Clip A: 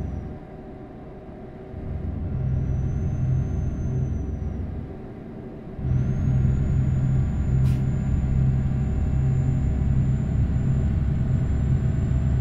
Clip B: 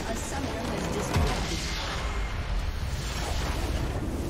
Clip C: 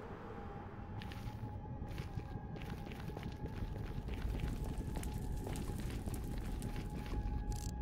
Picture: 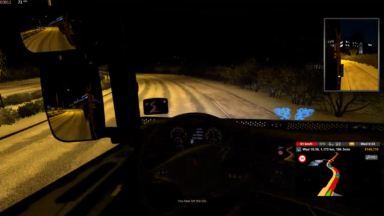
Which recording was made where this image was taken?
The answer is A